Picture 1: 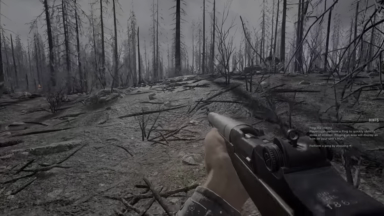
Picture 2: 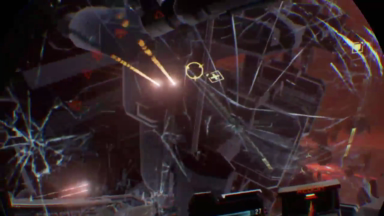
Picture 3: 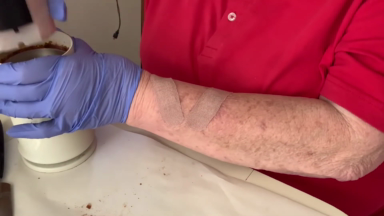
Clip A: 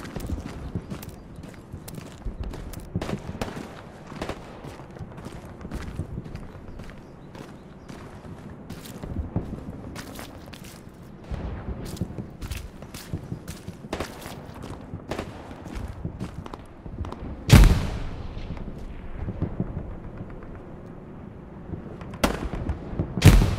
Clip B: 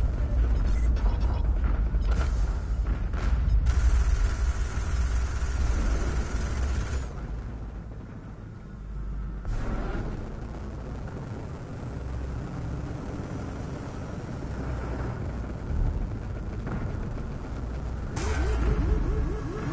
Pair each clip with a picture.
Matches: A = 1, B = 2